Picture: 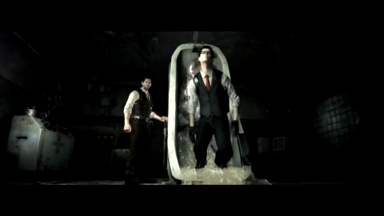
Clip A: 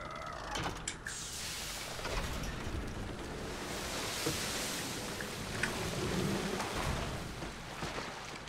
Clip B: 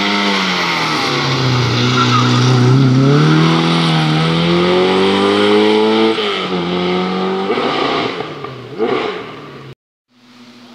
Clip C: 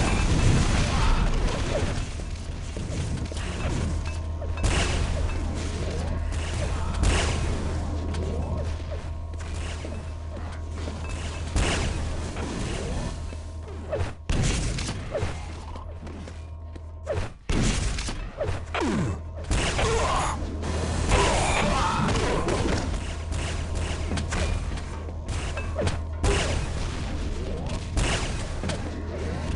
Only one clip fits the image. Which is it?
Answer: A